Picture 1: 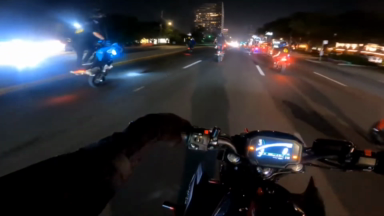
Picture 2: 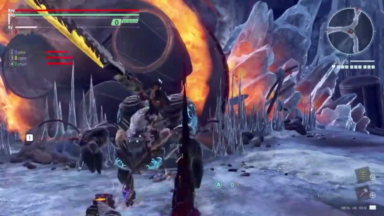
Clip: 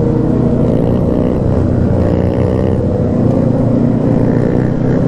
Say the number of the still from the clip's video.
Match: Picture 1